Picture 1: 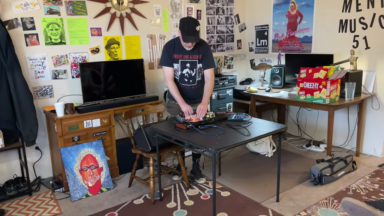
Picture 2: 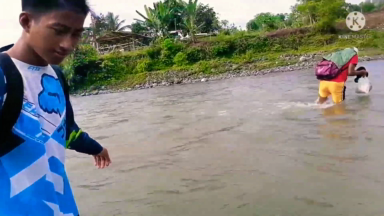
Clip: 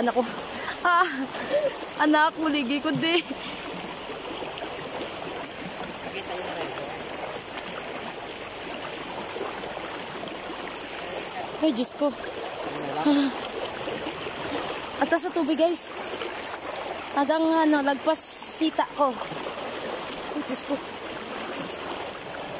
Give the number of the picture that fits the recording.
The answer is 2